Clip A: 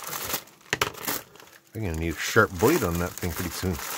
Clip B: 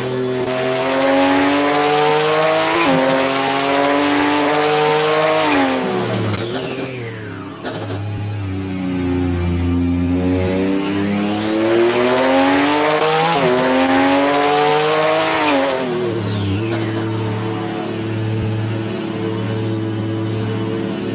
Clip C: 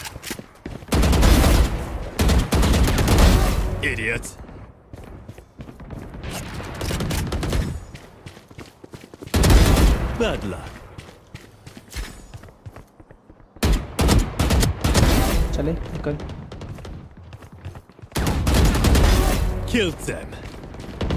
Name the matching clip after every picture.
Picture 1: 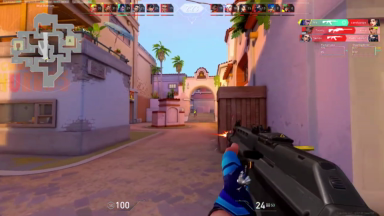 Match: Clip C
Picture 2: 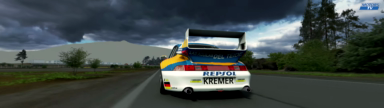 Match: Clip B